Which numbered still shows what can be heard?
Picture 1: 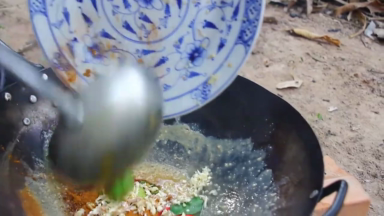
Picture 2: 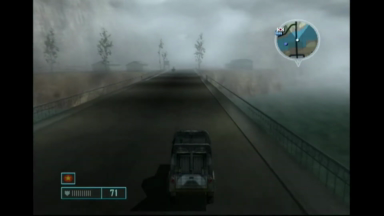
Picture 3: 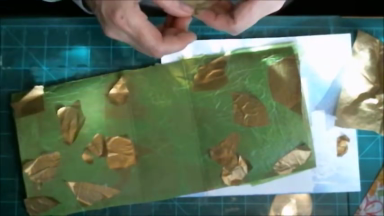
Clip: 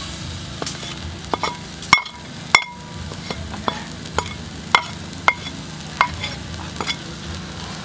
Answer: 1